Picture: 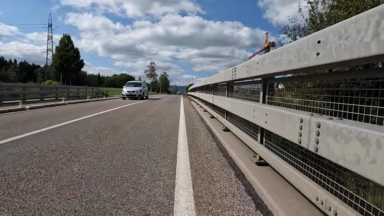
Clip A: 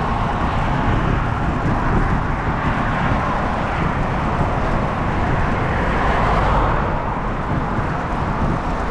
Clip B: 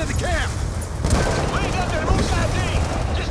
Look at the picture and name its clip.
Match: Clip A